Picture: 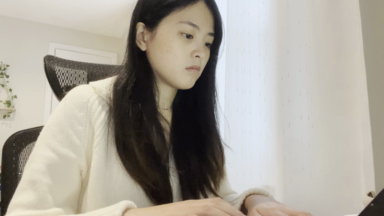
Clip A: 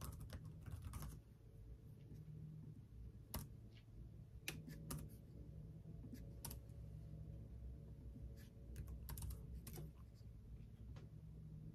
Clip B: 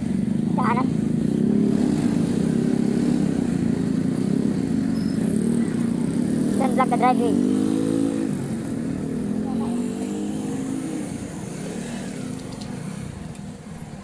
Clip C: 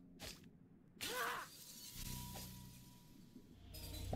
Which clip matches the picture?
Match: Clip A